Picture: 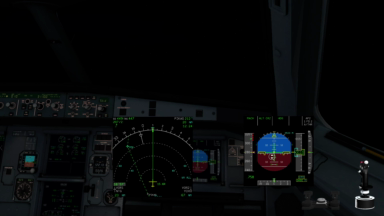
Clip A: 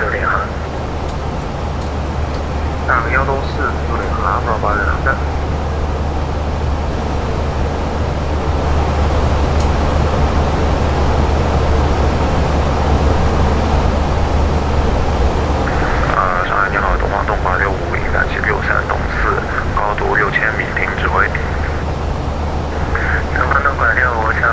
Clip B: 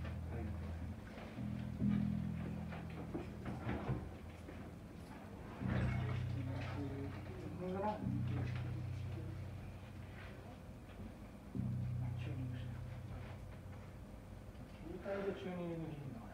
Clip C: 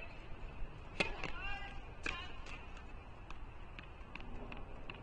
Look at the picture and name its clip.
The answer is A